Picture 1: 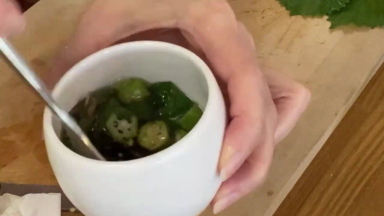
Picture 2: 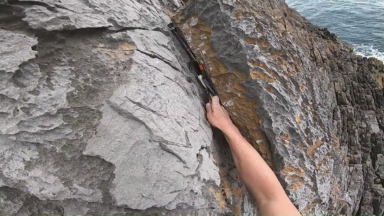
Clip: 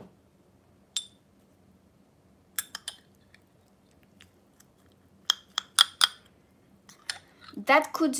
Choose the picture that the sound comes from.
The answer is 1